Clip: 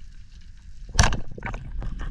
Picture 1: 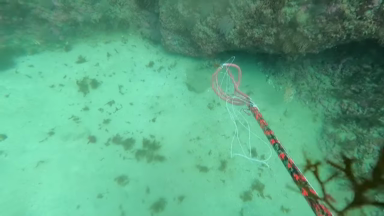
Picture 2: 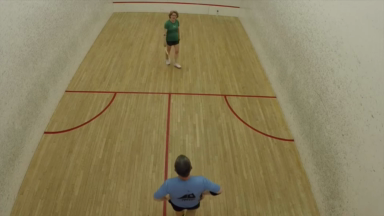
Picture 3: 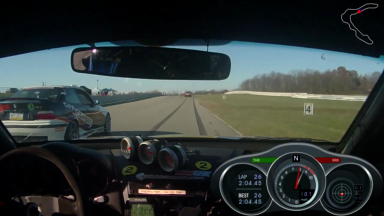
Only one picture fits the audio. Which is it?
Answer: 1